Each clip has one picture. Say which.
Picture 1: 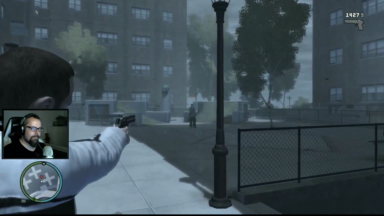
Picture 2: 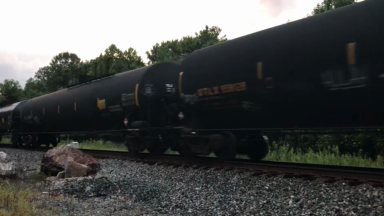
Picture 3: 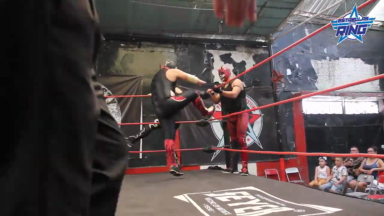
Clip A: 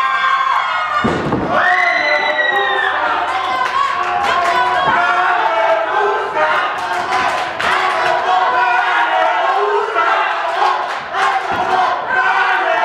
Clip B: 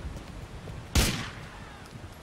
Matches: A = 3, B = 1